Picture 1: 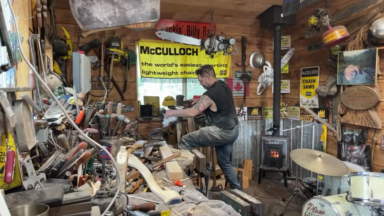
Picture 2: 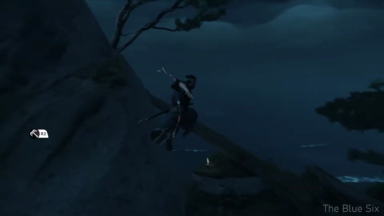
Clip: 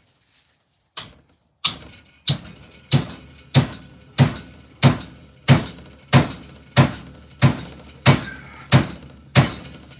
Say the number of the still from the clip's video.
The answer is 1